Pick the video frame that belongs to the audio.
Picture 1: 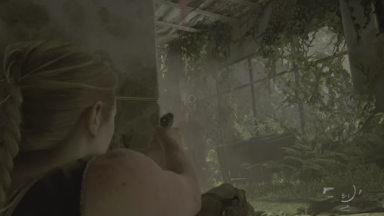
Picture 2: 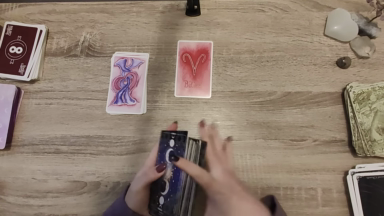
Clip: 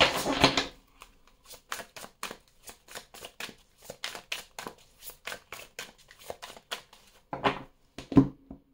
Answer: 2